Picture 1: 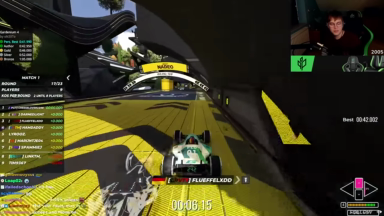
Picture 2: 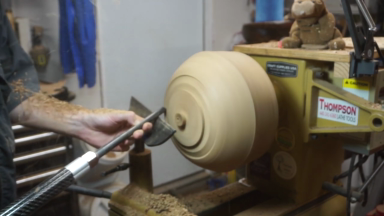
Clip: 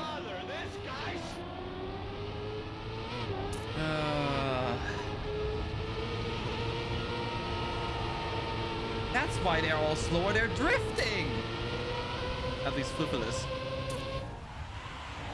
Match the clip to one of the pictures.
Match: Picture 1